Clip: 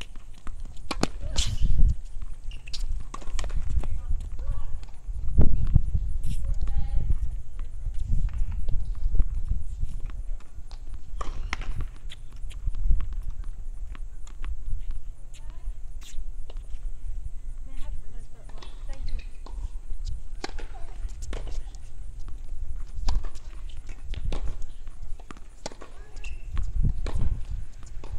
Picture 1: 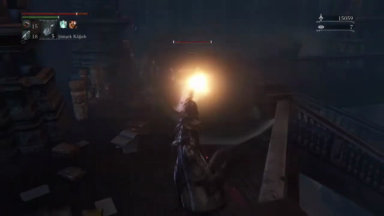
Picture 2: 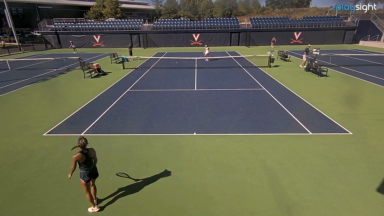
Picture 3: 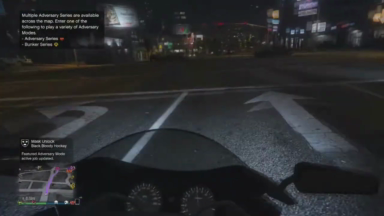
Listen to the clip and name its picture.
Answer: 2